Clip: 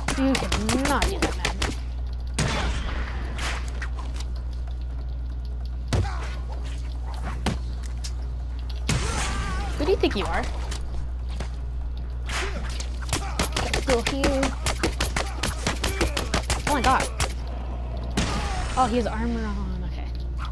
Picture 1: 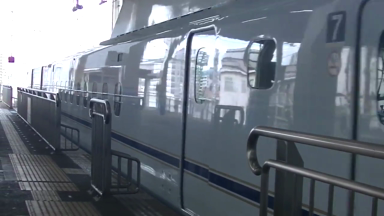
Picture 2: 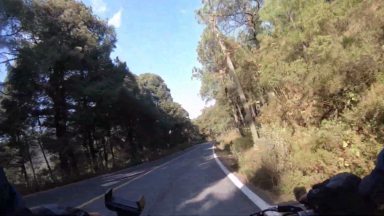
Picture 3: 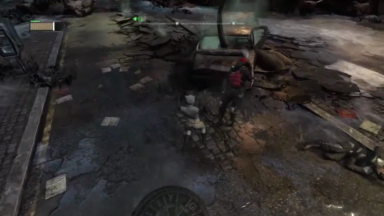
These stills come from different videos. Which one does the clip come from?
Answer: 3